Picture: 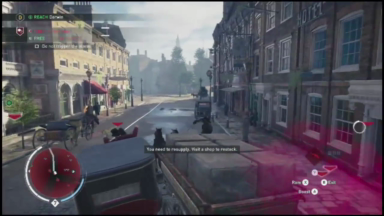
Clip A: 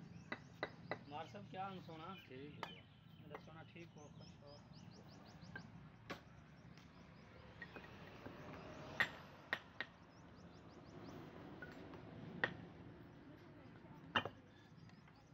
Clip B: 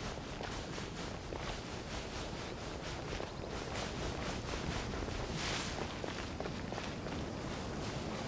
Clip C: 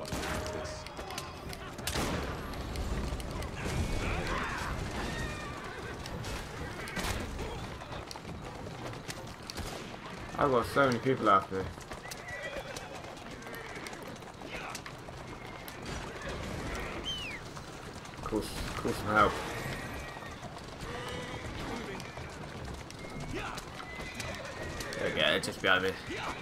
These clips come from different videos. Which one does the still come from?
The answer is C